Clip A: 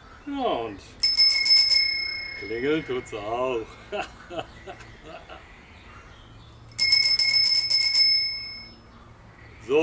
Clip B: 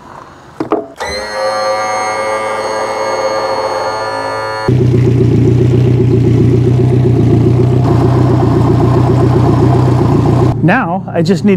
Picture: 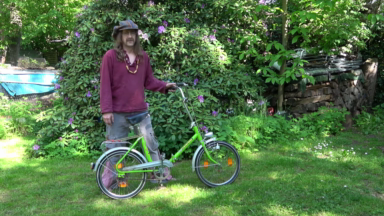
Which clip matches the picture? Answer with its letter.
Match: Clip A